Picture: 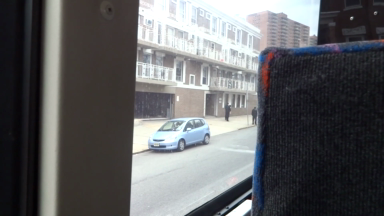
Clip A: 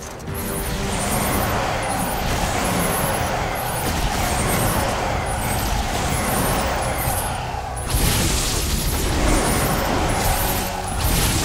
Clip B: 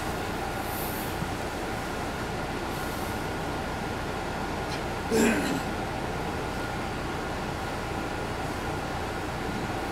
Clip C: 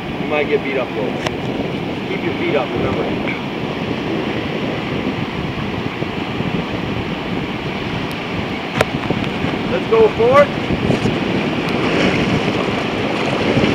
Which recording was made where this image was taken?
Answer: B